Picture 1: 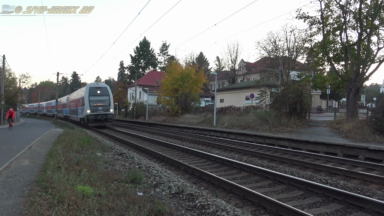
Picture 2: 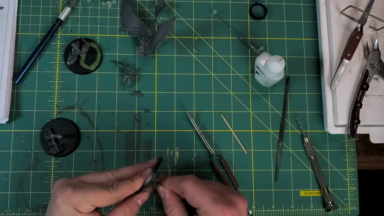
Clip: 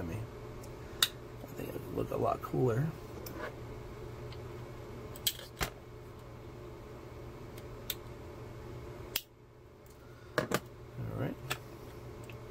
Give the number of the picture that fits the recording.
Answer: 2